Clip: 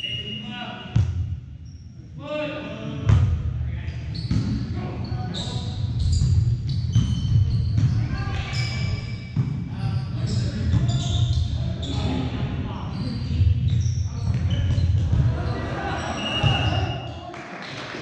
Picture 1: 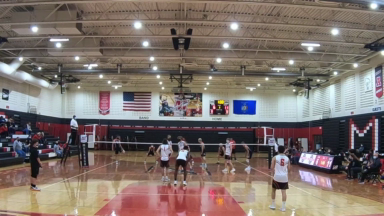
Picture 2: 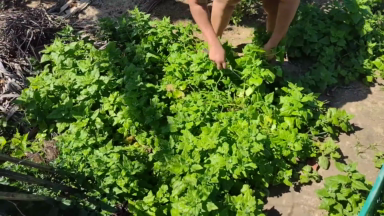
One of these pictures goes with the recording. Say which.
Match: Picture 1